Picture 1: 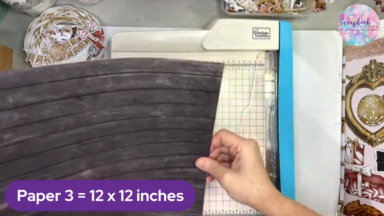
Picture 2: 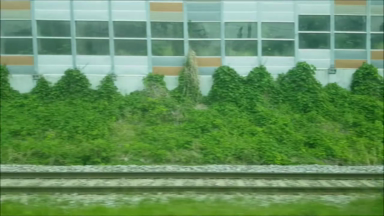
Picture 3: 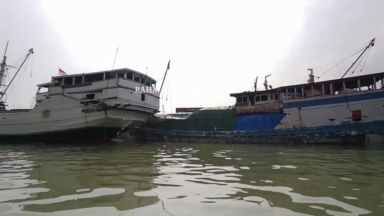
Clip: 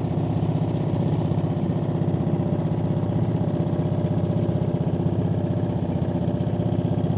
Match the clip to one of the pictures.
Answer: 3